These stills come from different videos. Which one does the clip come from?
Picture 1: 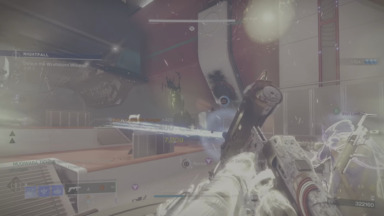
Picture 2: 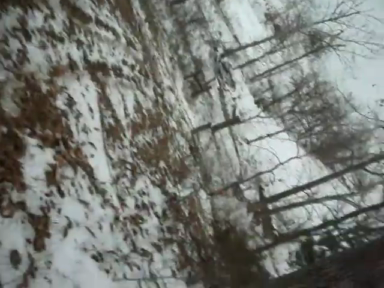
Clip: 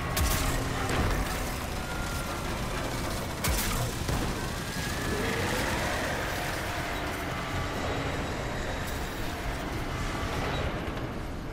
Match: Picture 1